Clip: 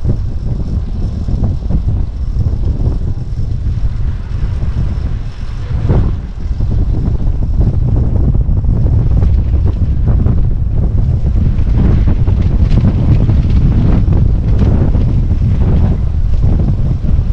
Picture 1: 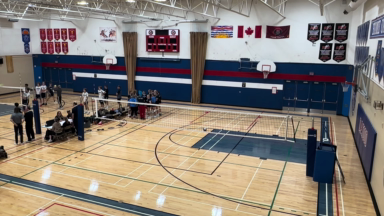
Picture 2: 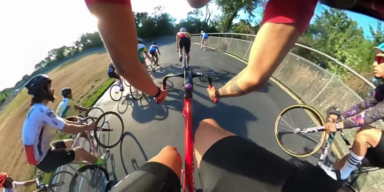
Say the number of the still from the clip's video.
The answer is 2